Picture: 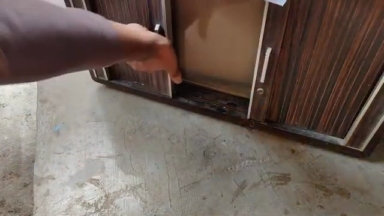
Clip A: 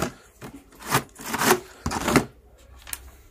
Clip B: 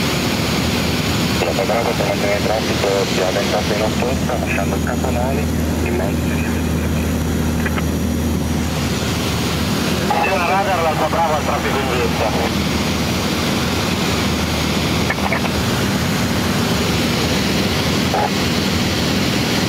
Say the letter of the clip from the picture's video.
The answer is A